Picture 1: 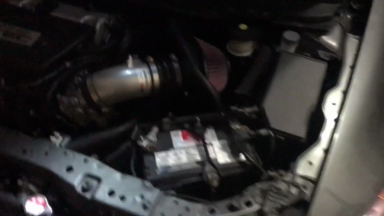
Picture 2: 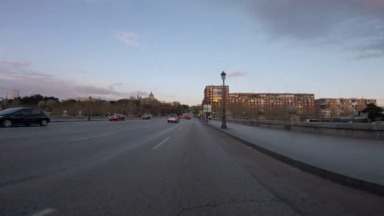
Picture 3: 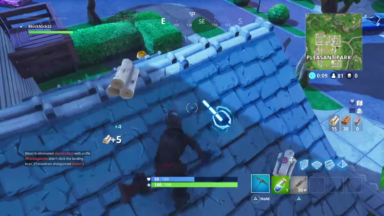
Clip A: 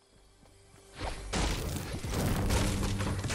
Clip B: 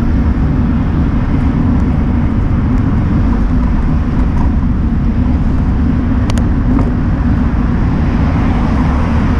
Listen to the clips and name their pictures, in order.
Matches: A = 3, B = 2